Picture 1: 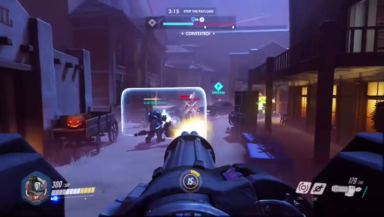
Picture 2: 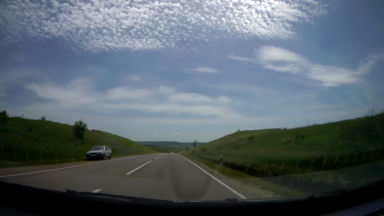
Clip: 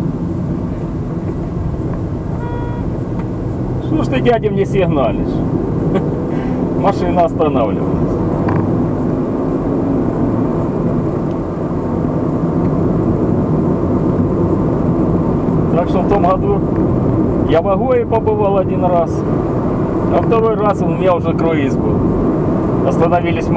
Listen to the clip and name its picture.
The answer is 2